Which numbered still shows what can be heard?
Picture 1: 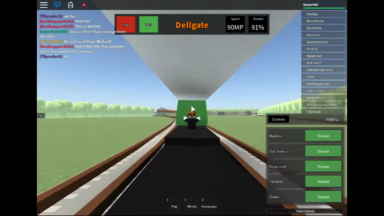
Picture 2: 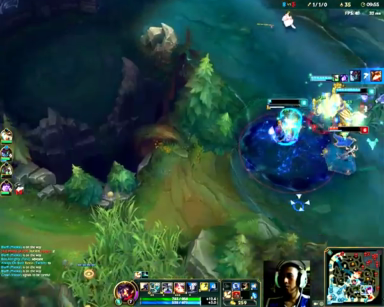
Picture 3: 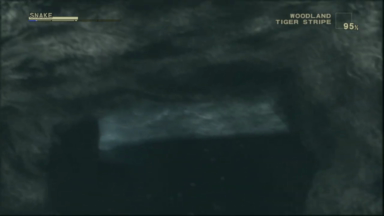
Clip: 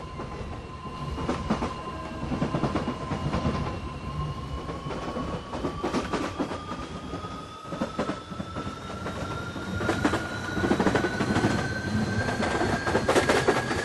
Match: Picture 1